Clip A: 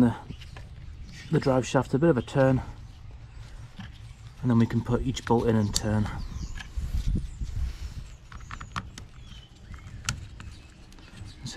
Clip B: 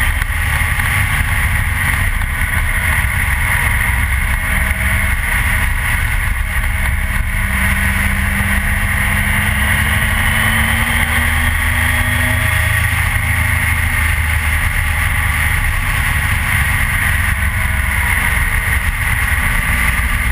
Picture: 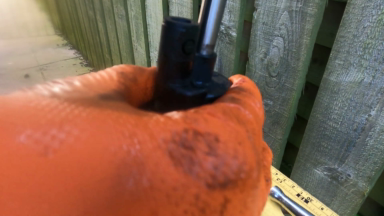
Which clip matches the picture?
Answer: A